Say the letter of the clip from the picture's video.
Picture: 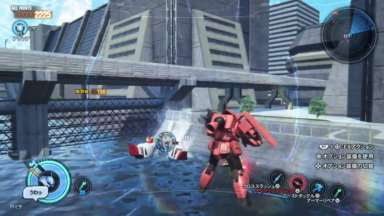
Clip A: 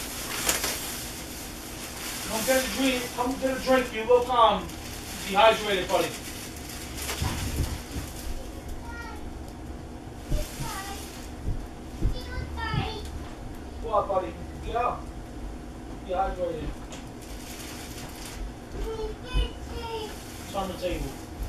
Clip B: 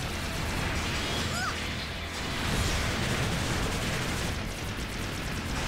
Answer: B